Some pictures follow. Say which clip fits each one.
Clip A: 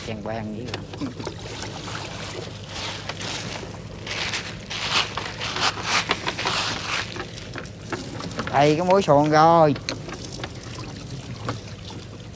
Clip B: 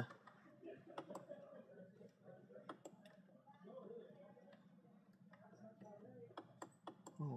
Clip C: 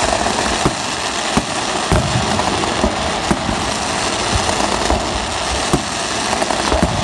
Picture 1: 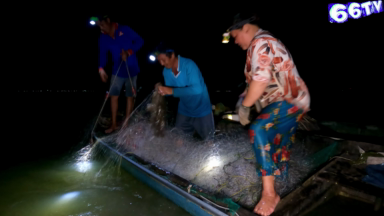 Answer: A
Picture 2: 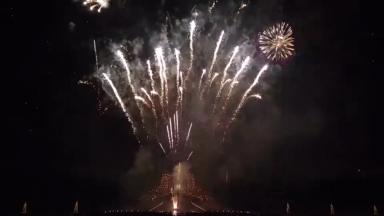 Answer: C